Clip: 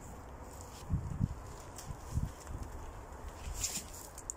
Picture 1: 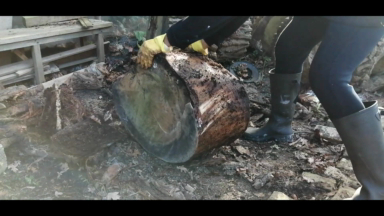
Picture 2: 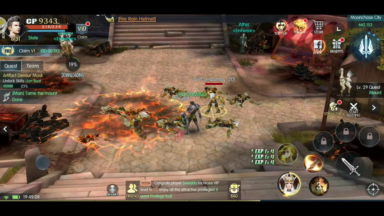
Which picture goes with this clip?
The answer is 1